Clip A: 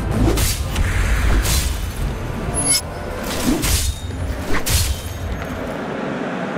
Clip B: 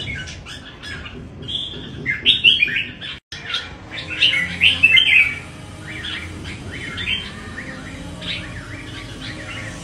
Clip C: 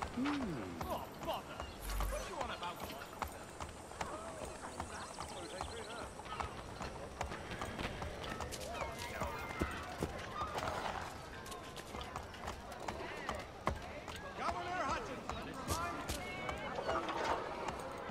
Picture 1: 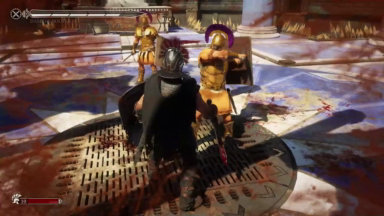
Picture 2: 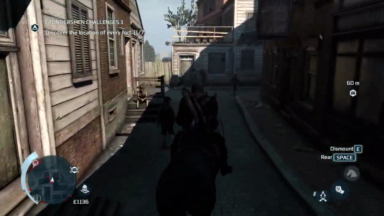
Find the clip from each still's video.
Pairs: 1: A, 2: C